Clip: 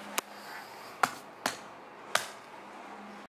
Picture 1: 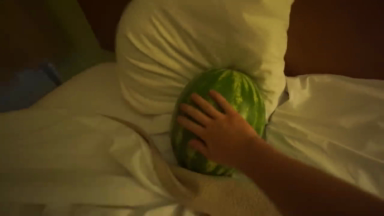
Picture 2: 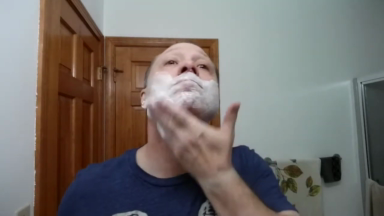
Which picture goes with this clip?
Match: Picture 1